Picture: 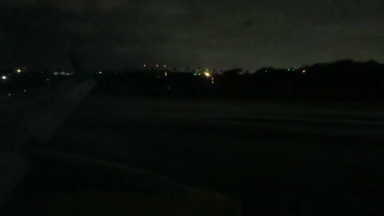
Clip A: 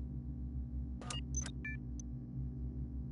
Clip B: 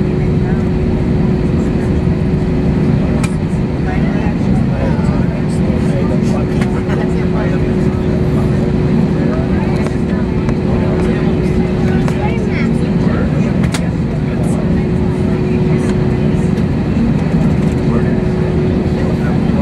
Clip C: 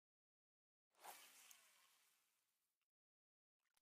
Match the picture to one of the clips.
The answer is B